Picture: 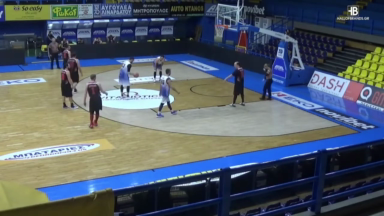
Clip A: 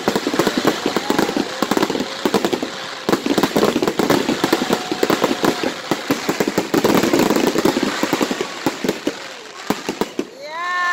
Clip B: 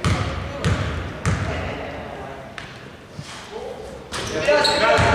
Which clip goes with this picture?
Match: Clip B